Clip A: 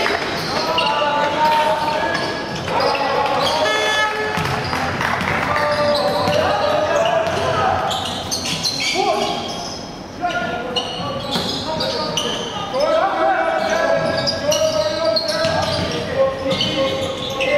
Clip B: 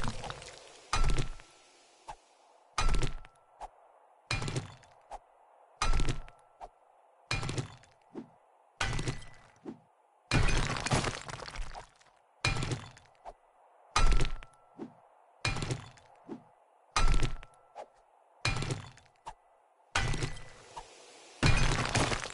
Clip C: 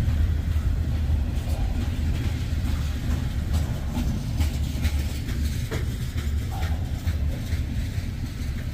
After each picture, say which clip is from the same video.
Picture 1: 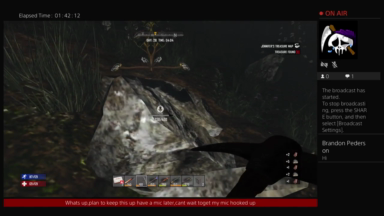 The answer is B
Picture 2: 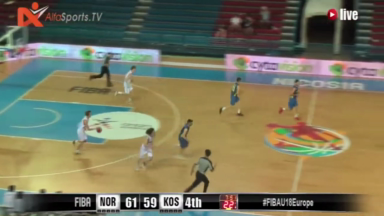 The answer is A